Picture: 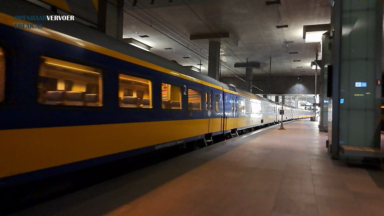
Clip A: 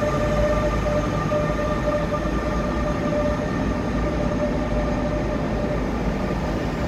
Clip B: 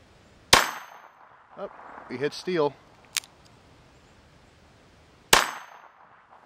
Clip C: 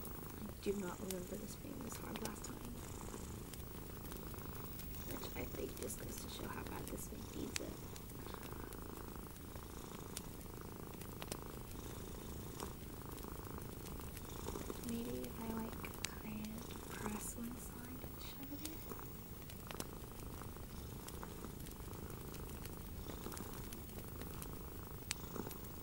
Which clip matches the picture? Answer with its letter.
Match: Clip A